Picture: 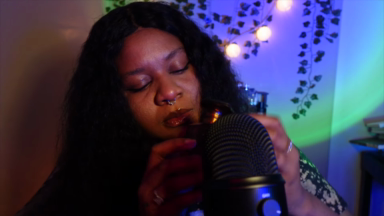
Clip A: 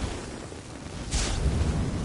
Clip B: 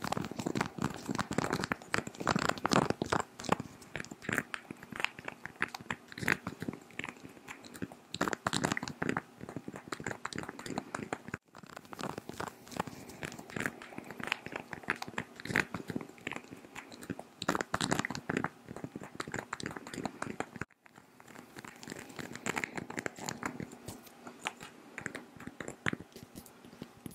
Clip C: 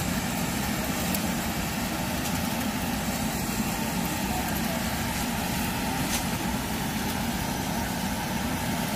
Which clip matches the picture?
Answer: B